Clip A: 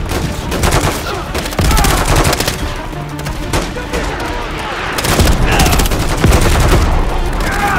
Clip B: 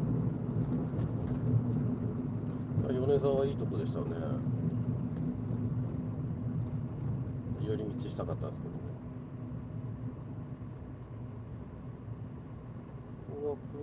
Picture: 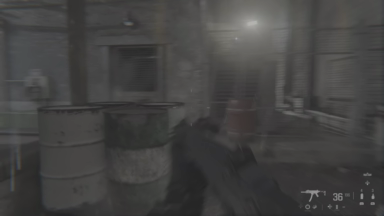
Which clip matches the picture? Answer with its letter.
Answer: A